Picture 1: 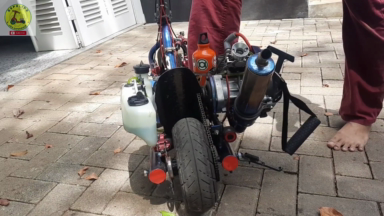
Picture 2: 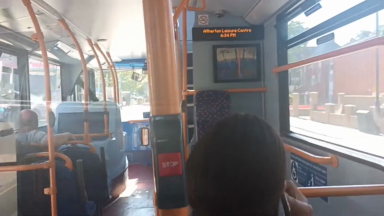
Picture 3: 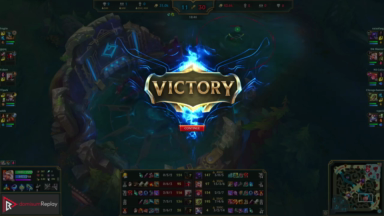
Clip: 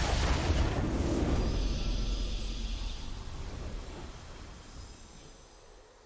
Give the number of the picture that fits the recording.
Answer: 3